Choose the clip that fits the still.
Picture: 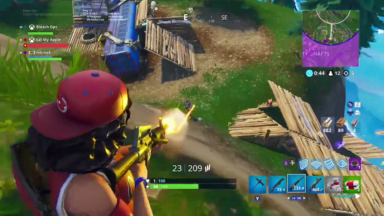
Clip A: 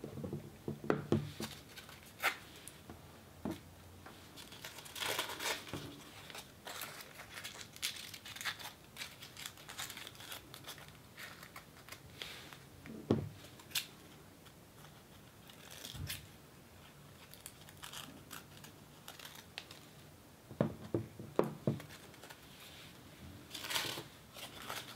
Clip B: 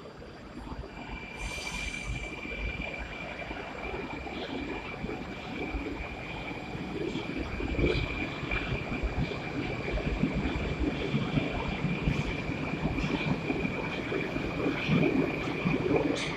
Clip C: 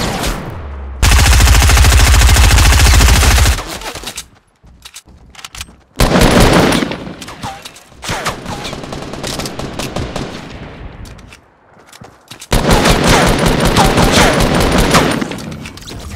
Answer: C